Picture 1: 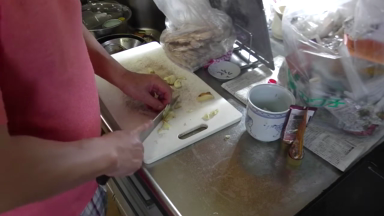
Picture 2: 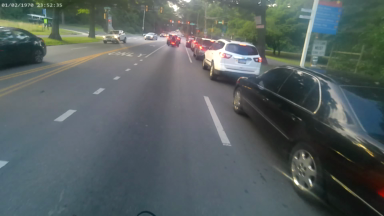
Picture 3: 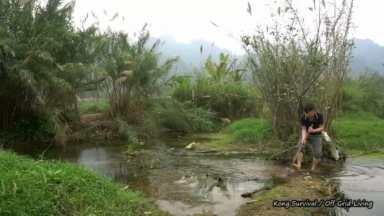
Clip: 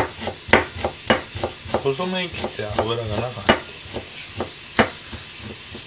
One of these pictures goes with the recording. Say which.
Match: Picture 1